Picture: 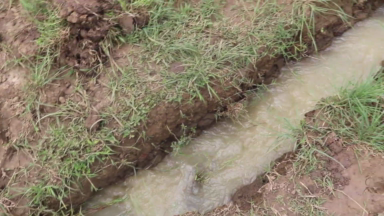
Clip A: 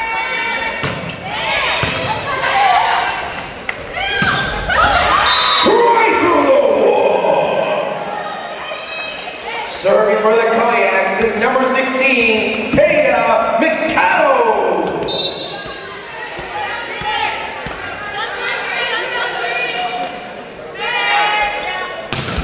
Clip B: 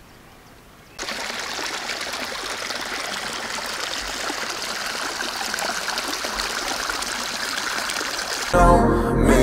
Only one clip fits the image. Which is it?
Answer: B